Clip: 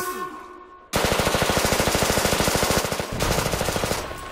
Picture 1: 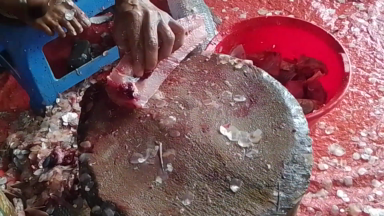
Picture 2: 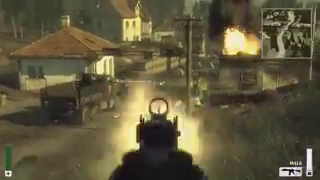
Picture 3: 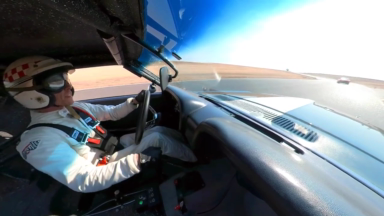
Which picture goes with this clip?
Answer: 2